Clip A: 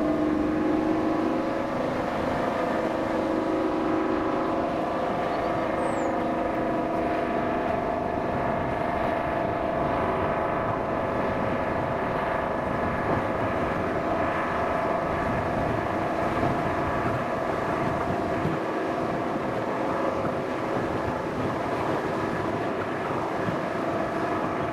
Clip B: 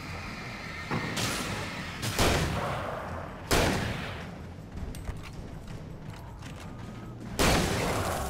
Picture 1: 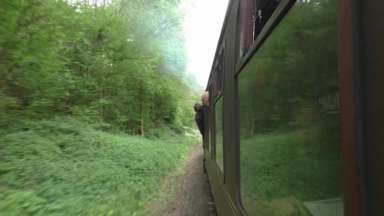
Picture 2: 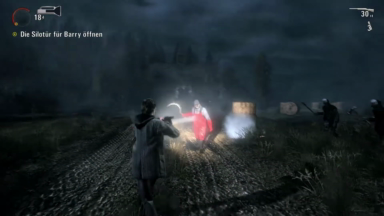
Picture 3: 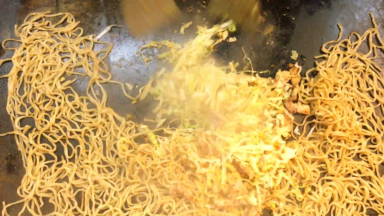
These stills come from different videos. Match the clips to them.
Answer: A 1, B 2